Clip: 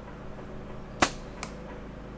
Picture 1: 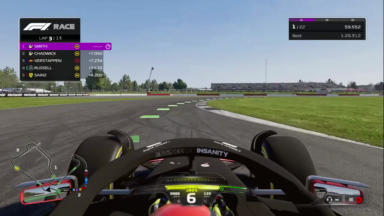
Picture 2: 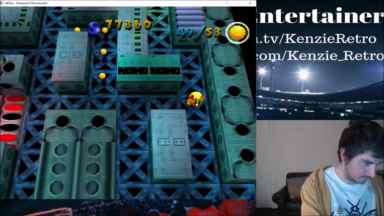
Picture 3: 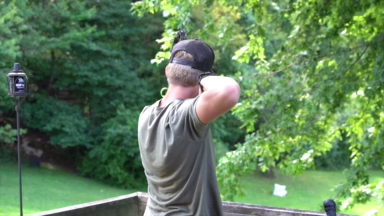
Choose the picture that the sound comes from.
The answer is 3